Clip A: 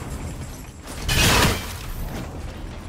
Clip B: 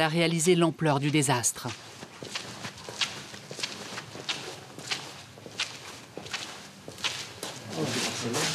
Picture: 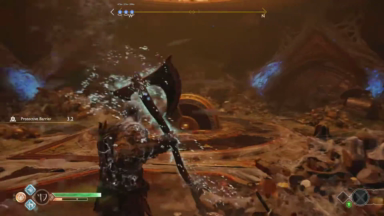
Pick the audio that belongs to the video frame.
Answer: A